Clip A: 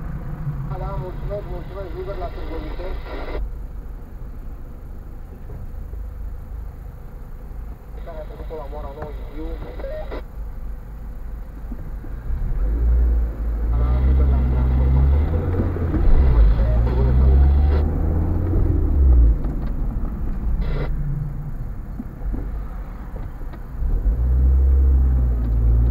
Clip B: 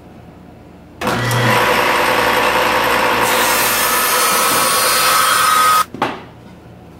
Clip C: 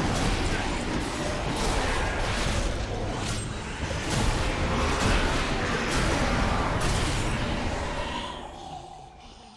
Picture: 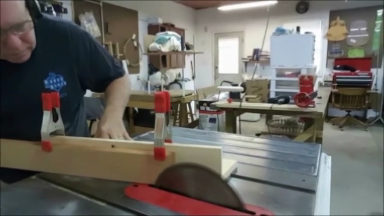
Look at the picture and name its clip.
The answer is B